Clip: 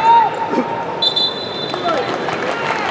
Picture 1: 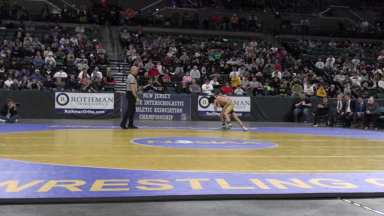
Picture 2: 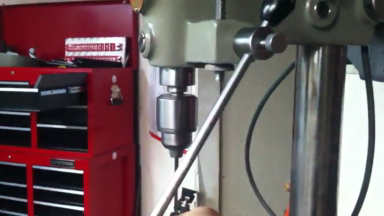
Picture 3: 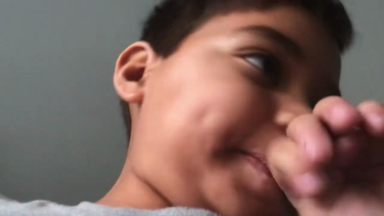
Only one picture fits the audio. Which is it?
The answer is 1